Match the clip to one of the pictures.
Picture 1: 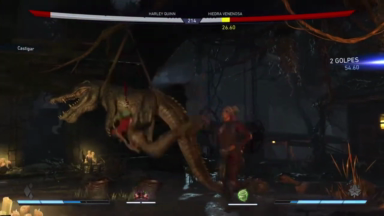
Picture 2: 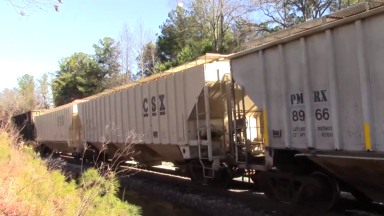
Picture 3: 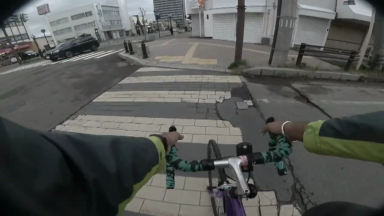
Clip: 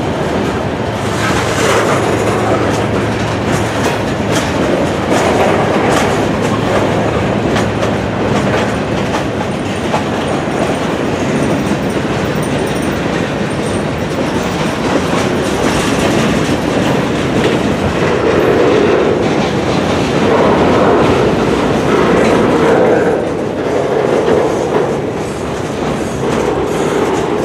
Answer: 2